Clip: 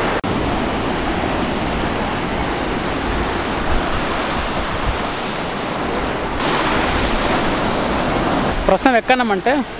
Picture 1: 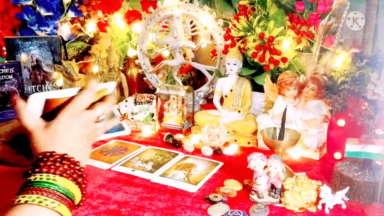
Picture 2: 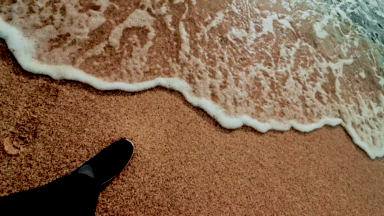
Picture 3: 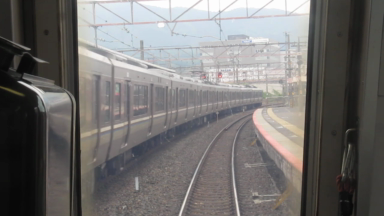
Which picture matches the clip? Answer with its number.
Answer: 2